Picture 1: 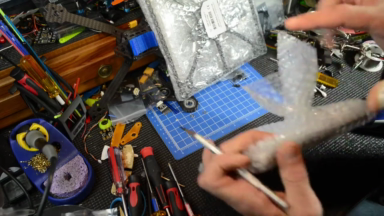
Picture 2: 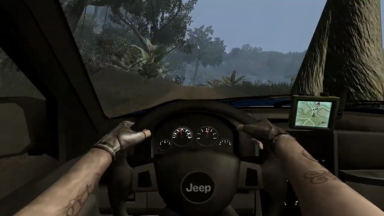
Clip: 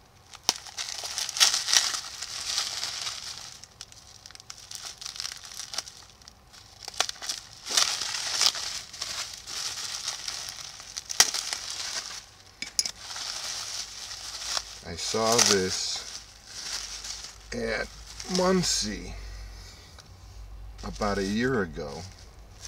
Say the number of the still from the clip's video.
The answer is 1